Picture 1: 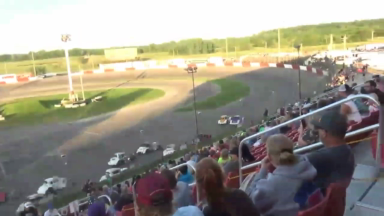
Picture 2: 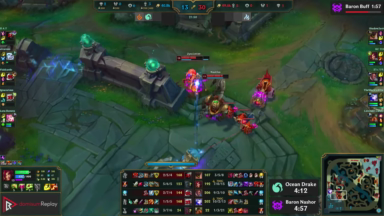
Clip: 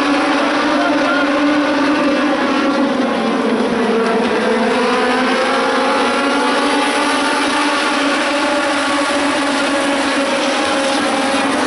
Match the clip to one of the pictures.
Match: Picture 1